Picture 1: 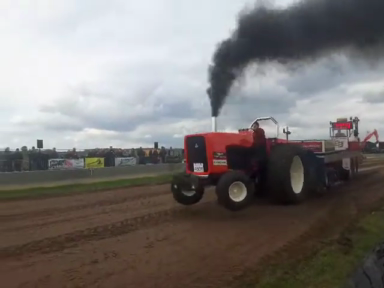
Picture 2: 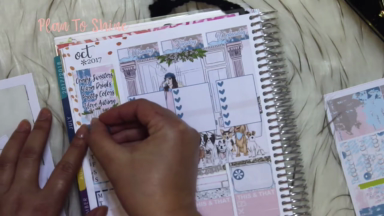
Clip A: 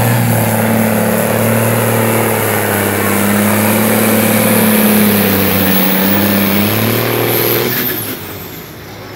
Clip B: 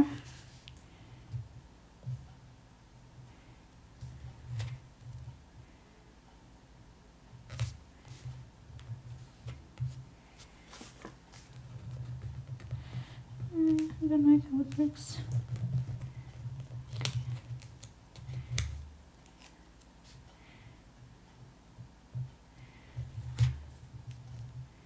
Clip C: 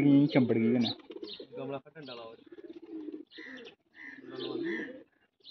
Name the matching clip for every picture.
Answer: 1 A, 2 B